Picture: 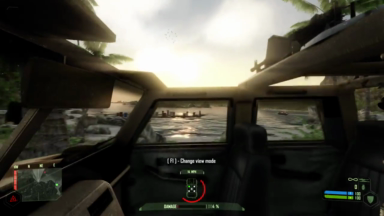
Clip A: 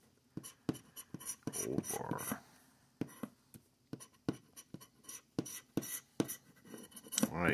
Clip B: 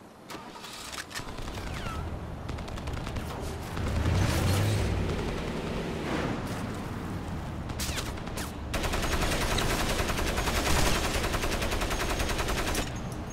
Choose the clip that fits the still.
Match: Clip B